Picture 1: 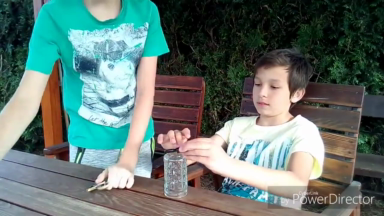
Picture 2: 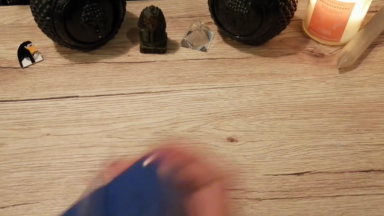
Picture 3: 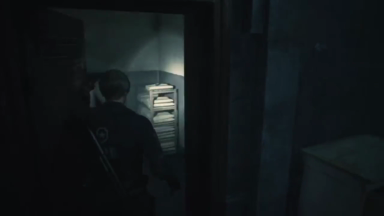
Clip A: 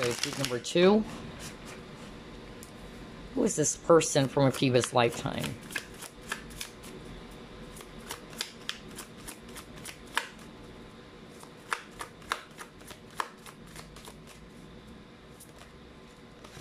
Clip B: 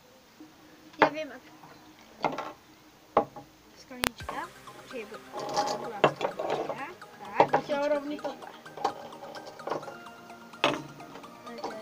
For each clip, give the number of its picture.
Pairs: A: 2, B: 1